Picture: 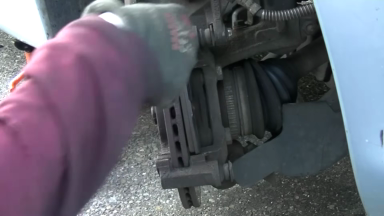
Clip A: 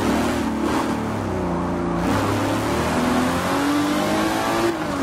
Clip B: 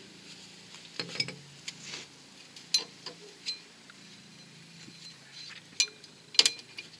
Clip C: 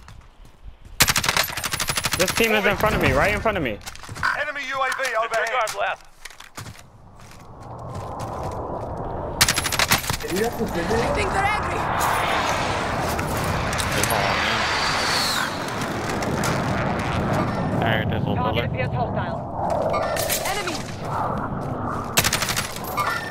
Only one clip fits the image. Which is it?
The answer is B